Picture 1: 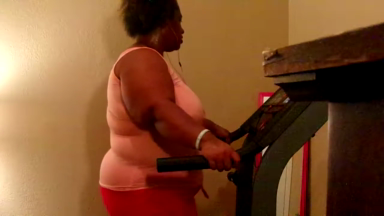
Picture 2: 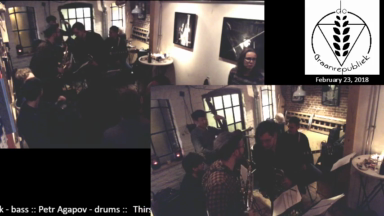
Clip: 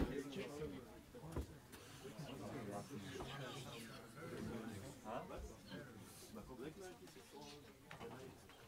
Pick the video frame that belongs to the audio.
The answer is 2